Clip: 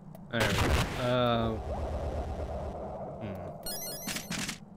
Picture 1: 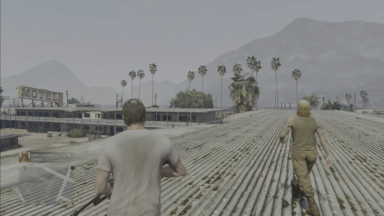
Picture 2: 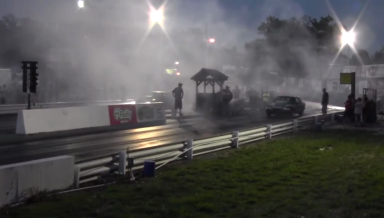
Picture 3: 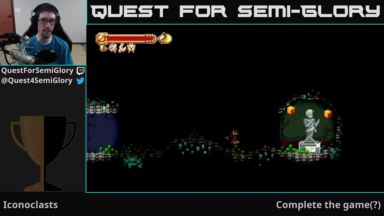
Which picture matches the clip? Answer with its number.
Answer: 3